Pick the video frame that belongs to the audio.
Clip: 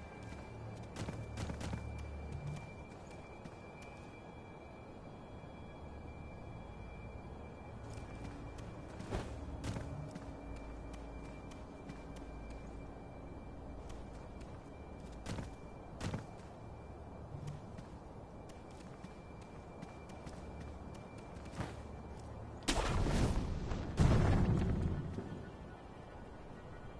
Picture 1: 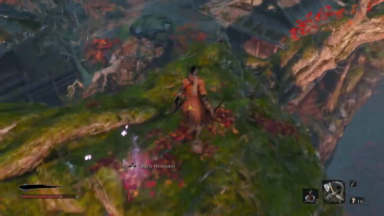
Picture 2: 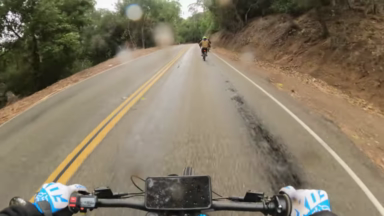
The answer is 1